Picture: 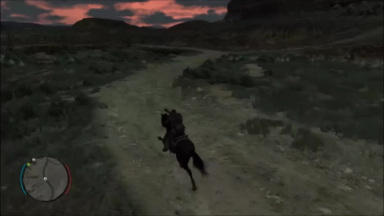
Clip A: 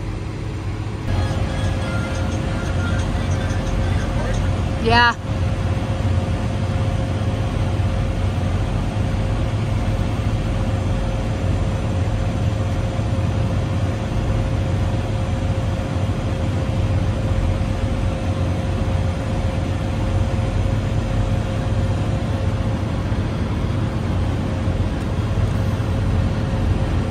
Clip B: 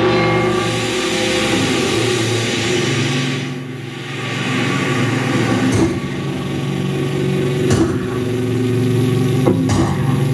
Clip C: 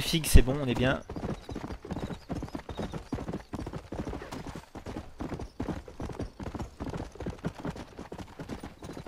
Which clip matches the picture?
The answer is C